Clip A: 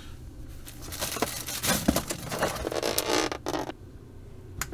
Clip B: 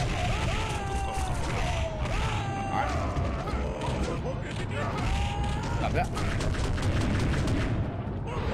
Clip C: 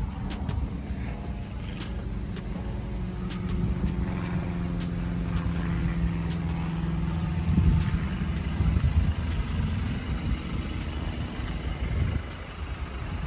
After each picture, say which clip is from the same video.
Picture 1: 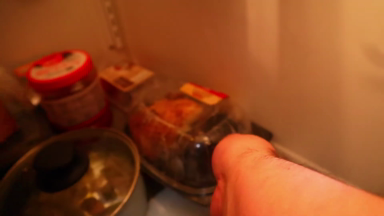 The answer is A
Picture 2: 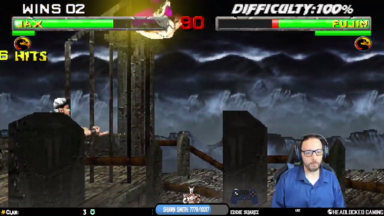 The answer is B